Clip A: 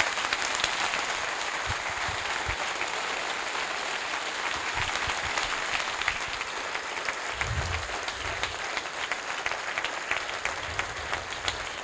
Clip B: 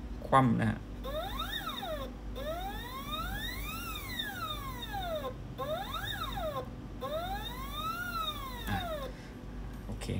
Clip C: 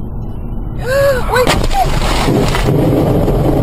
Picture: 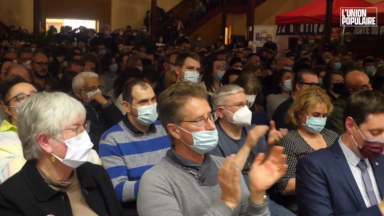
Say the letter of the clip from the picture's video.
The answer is A